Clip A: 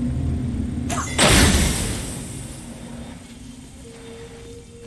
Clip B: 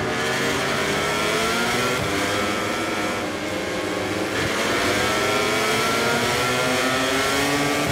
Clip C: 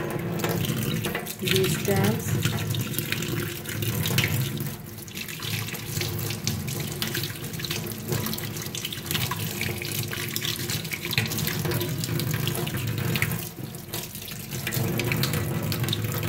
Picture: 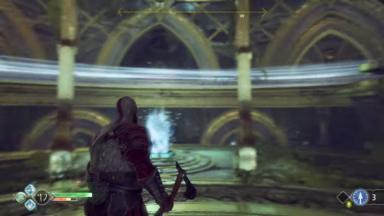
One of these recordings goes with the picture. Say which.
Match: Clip A